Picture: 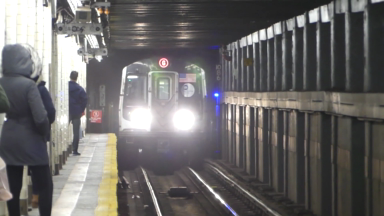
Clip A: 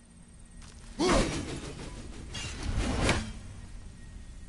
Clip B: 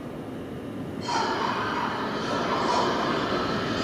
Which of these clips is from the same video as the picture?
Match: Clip B